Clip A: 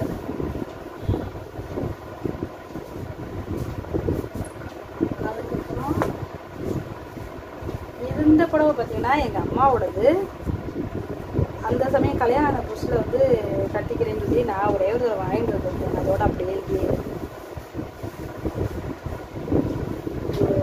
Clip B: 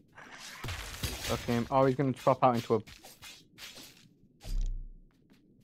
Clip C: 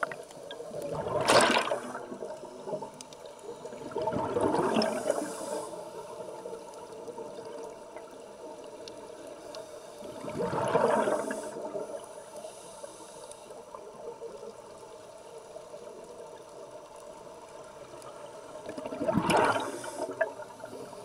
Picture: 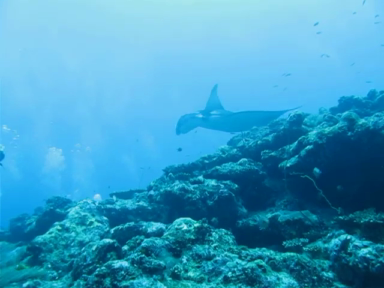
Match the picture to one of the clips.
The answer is C